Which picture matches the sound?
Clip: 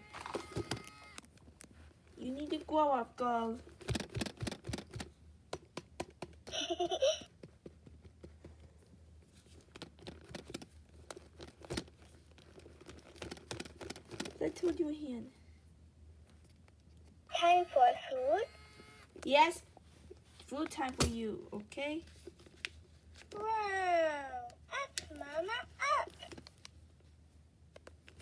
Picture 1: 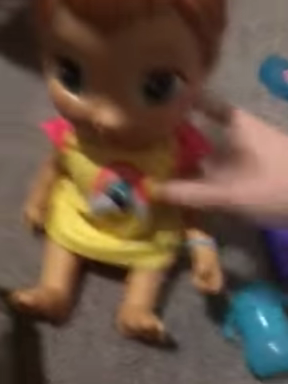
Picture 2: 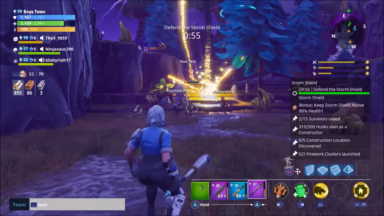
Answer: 1